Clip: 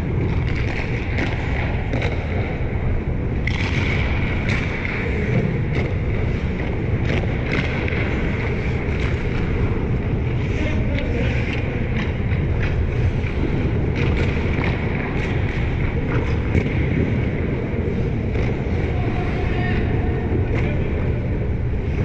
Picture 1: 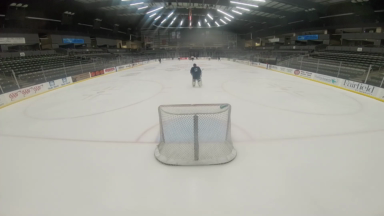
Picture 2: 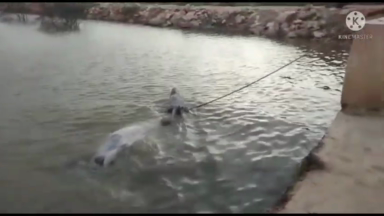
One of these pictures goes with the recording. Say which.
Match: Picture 1